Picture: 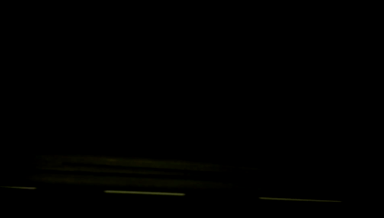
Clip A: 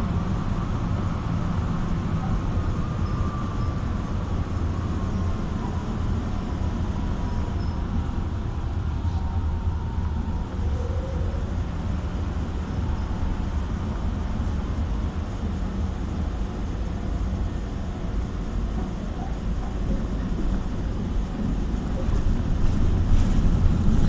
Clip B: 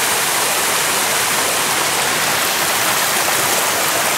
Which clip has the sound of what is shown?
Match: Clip A